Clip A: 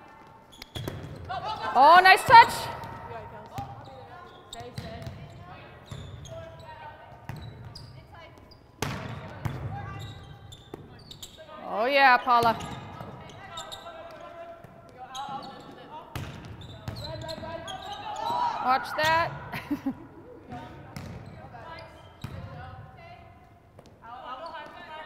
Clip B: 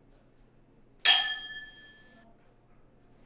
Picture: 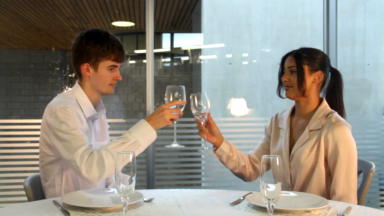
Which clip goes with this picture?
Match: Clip B